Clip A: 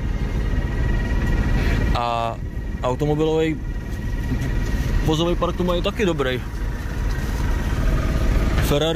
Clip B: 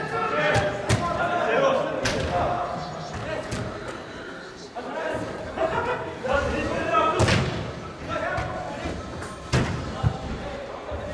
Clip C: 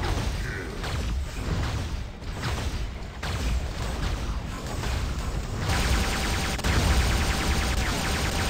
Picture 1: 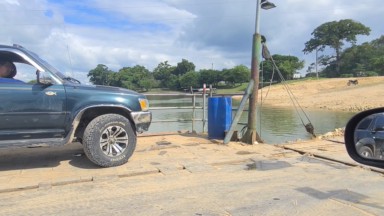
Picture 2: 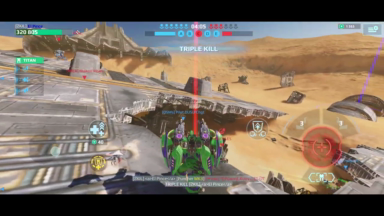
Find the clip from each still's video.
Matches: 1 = A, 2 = C